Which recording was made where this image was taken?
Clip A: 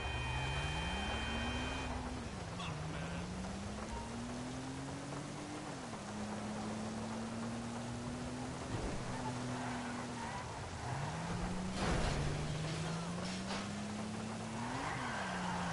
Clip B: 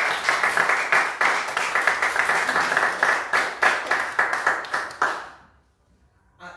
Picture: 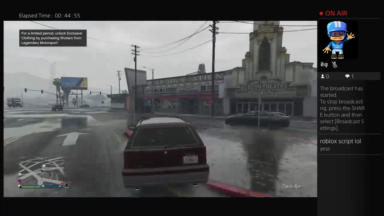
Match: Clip A